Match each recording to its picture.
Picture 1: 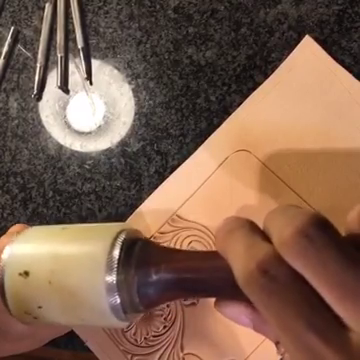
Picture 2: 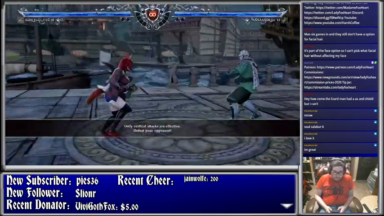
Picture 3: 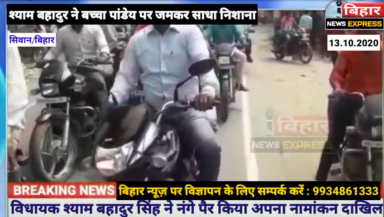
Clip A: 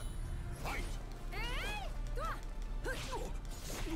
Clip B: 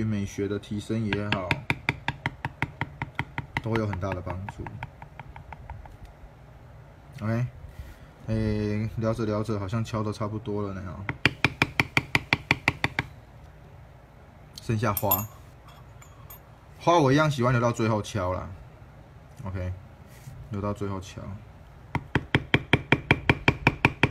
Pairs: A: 2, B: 1